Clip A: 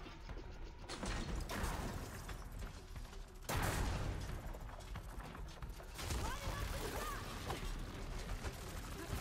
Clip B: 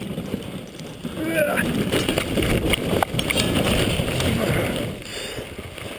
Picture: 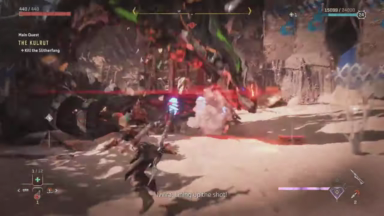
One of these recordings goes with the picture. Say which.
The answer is A